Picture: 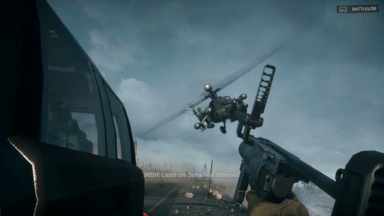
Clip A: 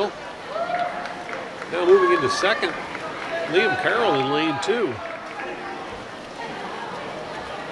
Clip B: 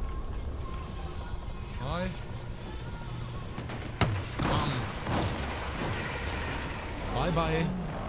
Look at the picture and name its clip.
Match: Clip B